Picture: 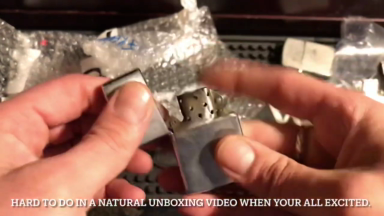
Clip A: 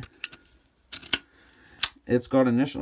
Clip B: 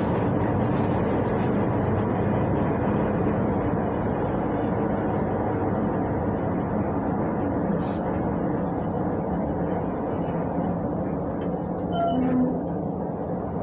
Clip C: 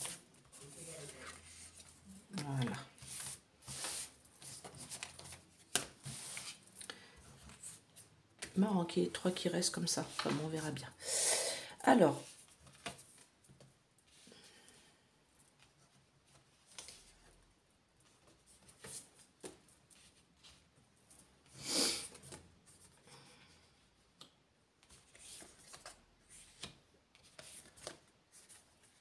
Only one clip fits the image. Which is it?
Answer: A